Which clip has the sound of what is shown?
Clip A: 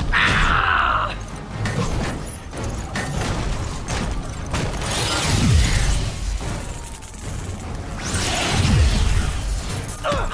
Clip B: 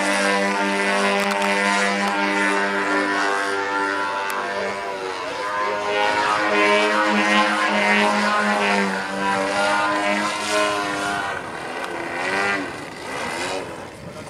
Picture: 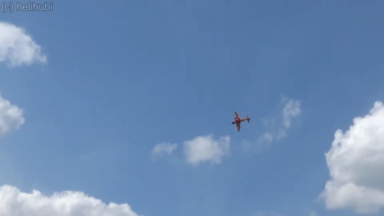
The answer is B